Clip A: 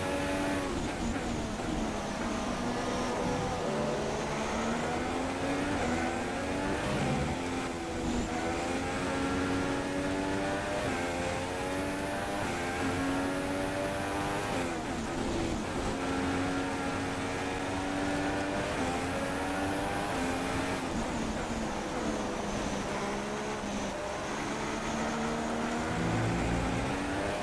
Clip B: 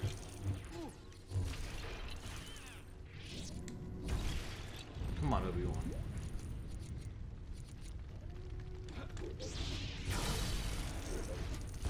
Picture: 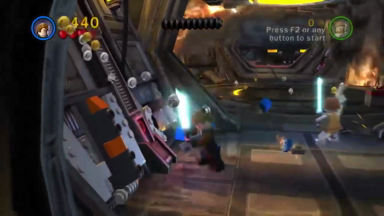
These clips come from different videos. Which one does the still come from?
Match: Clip B